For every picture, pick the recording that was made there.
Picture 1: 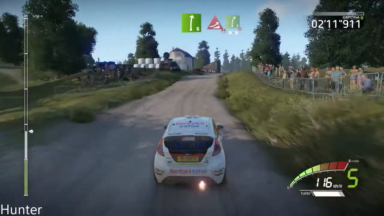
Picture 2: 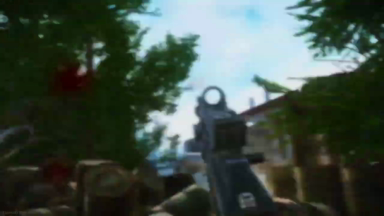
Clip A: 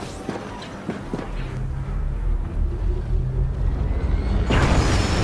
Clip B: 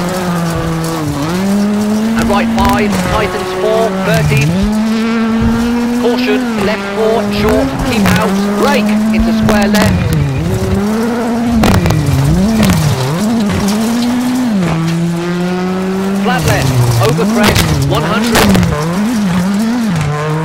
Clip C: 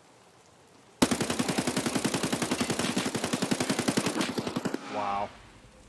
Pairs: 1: B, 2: C